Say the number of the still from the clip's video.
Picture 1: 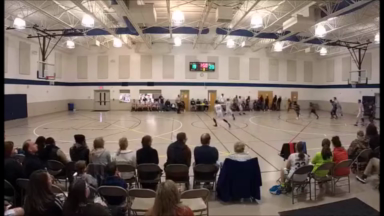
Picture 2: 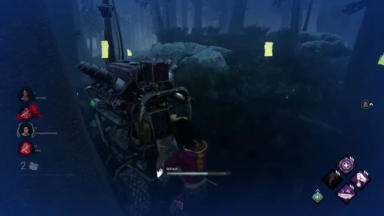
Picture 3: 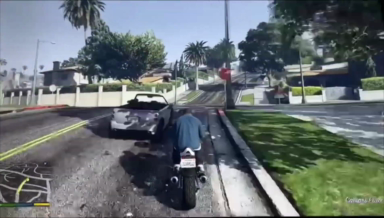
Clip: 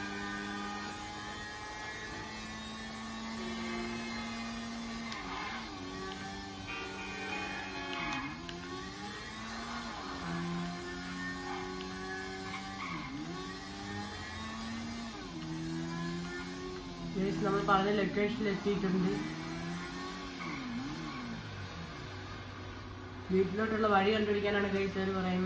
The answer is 3